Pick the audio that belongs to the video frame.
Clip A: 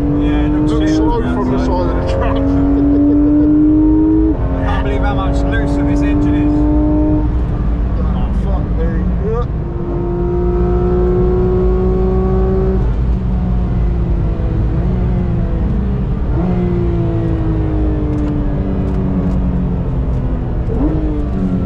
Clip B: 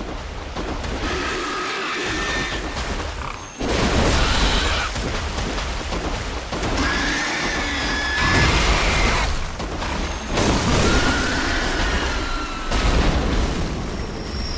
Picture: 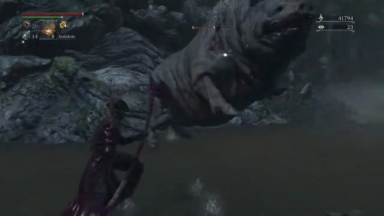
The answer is B